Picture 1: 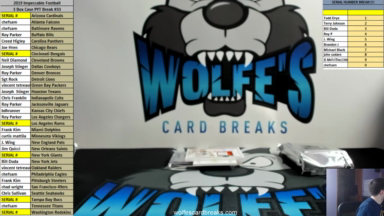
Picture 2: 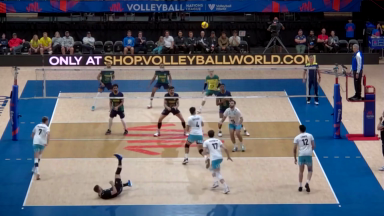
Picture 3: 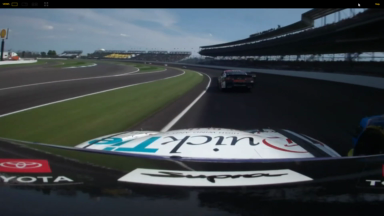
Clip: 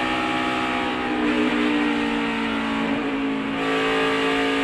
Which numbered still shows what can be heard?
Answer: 3